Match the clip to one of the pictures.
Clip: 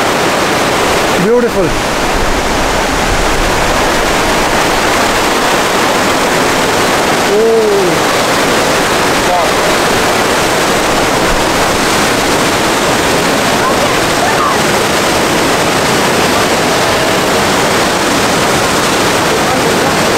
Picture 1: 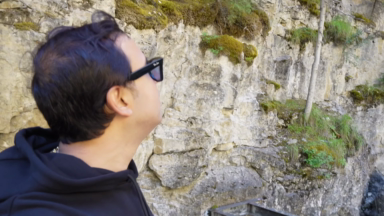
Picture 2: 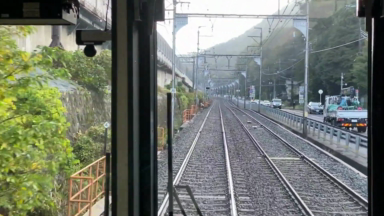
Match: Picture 1